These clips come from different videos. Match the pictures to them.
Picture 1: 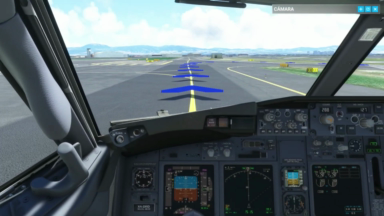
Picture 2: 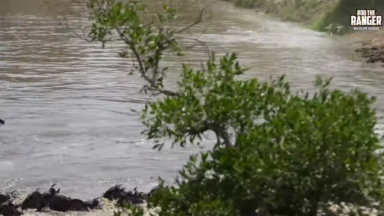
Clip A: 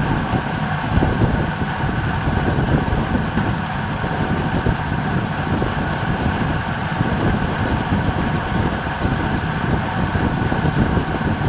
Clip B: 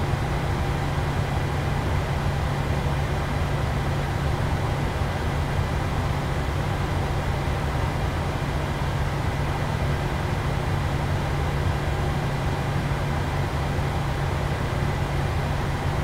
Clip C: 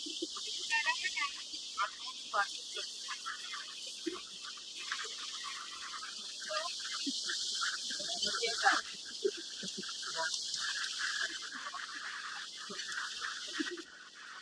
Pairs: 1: B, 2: C